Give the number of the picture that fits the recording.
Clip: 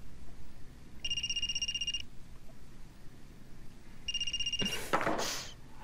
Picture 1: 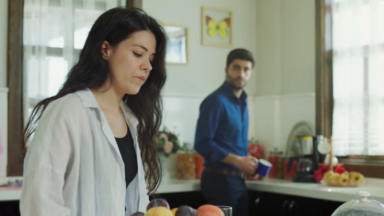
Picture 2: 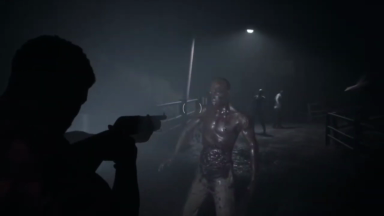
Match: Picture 1